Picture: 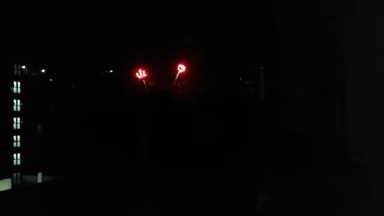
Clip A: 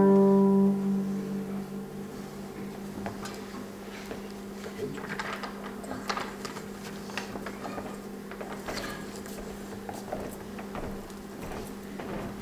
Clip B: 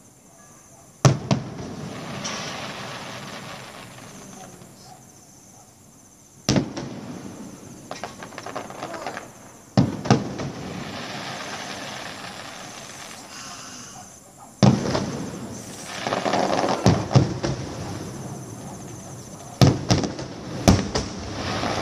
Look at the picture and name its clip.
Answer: B